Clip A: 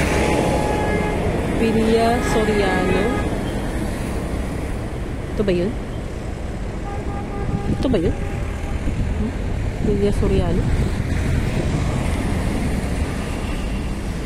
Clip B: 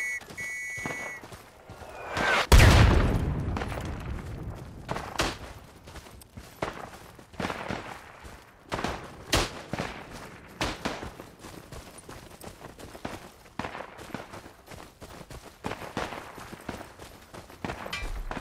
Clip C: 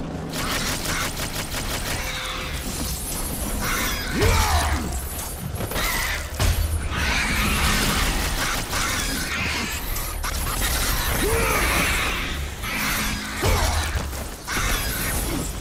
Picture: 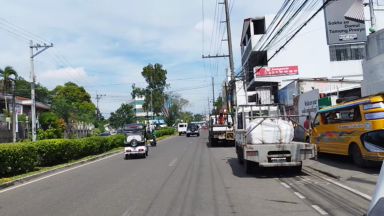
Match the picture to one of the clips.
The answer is A